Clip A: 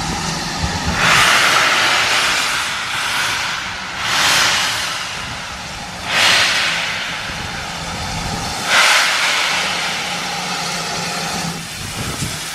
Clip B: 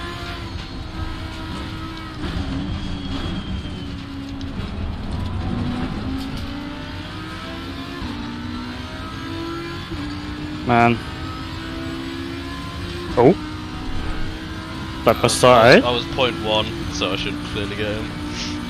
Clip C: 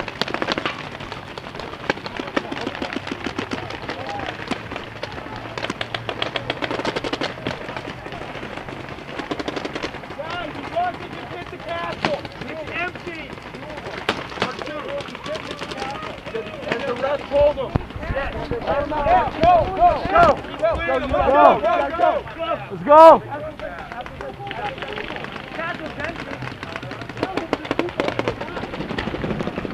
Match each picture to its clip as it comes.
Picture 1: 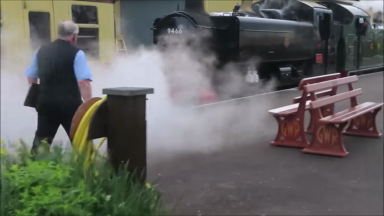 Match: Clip A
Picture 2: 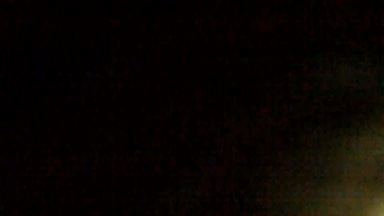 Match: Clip C